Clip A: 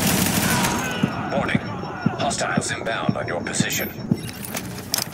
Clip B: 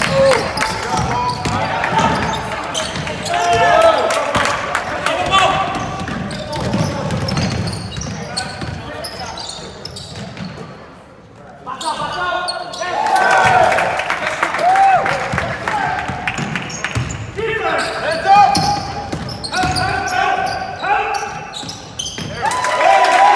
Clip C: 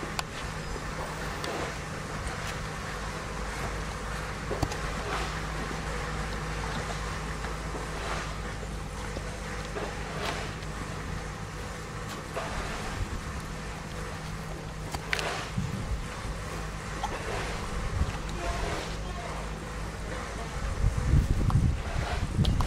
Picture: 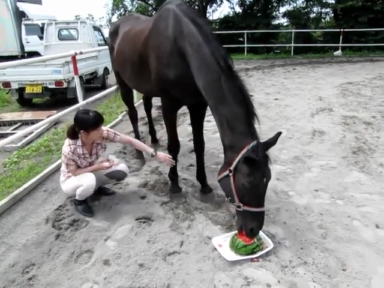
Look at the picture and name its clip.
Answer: C